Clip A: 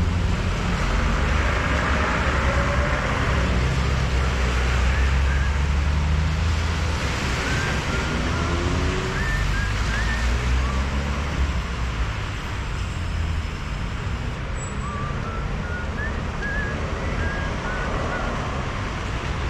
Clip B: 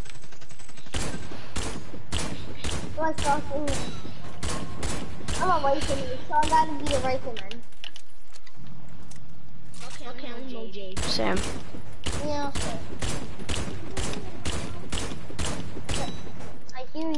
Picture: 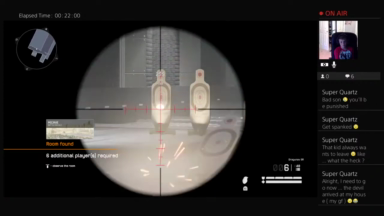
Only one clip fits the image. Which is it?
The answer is B